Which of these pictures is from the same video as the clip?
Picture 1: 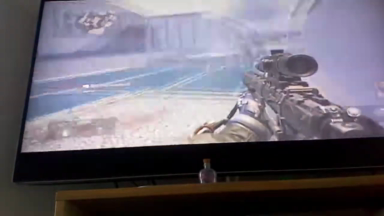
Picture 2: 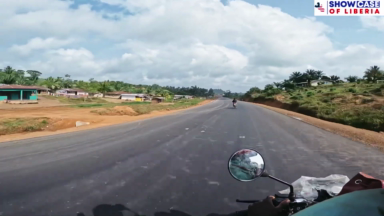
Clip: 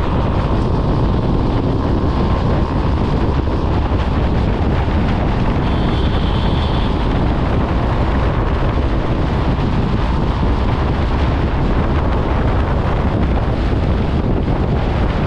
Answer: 2